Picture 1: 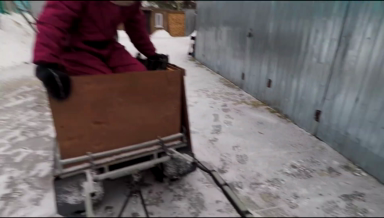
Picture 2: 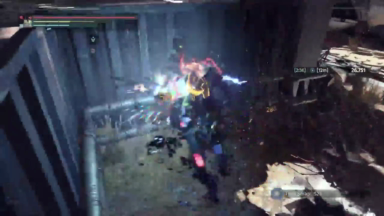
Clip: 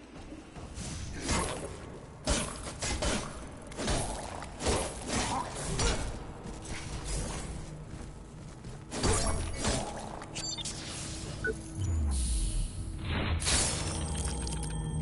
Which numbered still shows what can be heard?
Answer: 2